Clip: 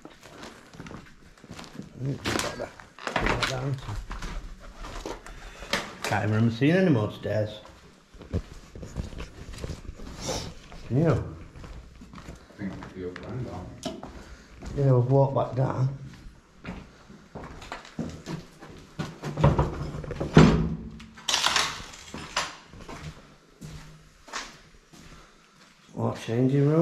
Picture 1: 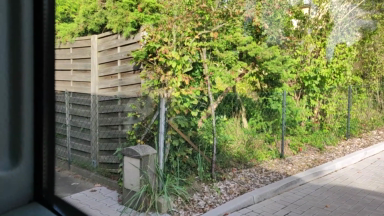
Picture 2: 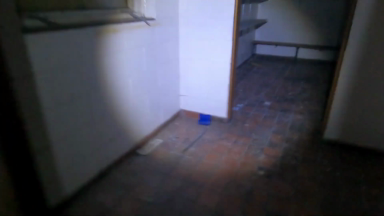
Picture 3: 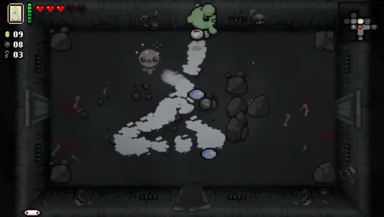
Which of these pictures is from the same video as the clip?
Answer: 2